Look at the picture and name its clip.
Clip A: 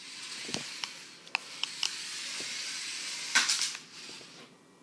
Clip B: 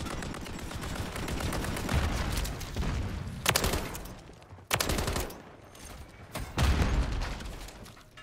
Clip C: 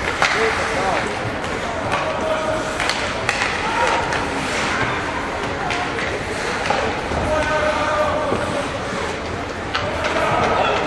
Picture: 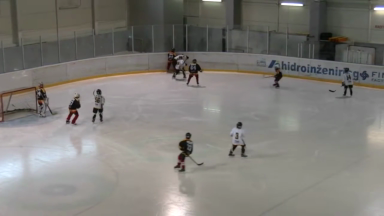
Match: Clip C